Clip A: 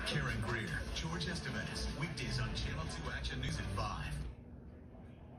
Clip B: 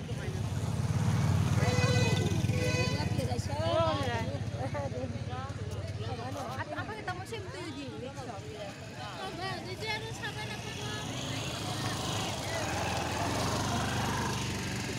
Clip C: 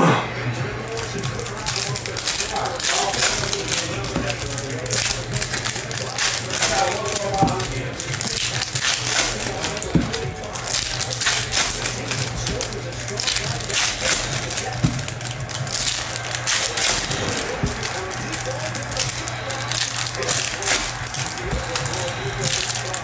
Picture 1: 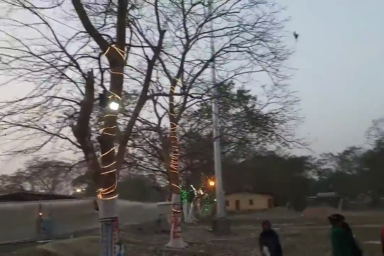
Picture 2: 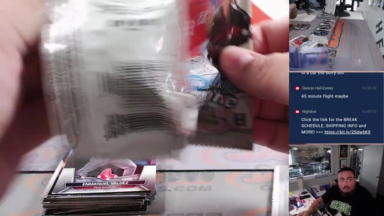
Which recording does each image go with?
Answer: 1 B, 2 C